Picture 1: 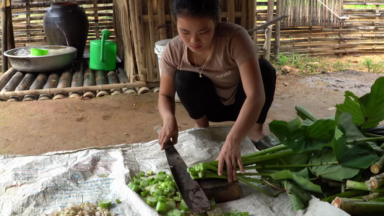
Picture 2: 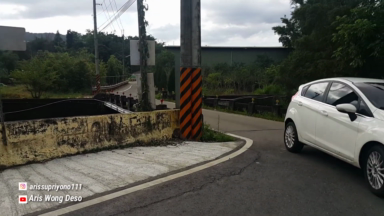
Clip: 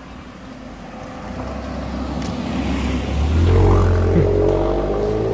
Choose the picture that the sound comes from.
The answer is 2